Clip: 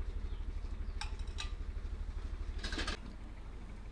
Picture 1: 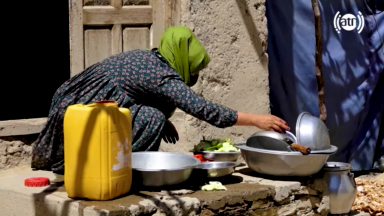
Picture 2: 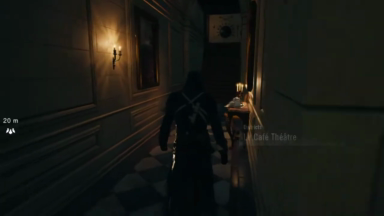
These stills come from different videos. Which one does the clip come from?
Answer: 1